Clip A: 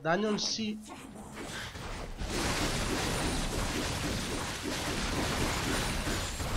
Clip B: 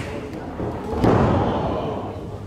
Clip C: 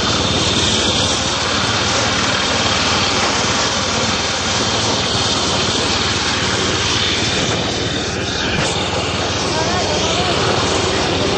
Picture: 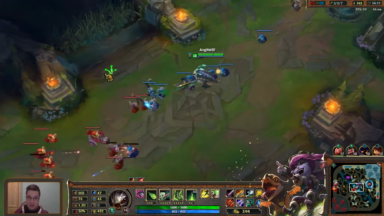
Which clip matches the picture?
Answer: A